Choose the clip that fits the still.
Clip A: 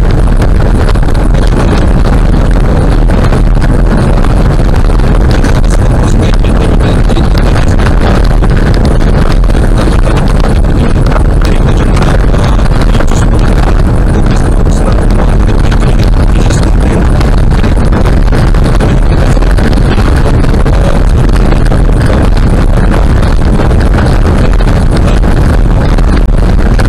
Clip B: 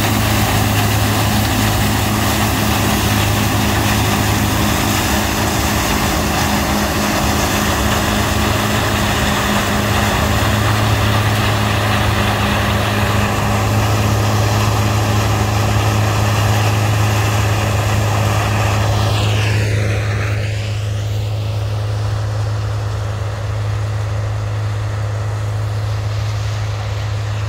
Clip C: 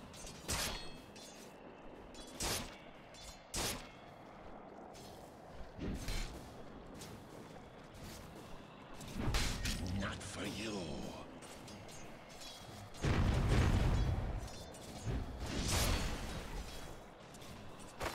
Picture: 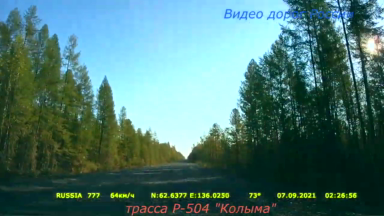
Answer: A